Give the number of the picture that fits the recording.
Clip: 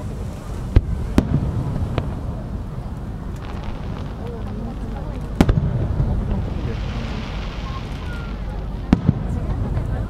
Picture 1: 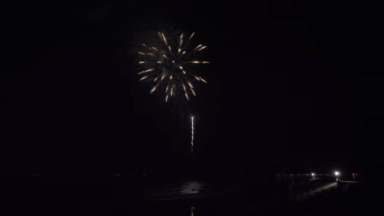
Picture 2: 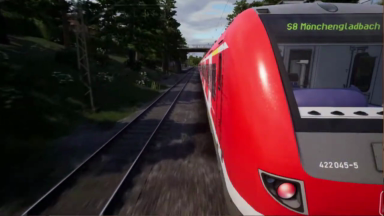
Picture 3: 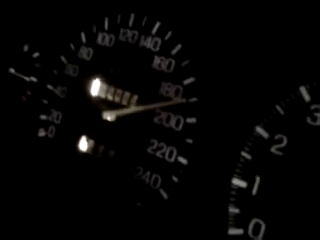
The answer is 1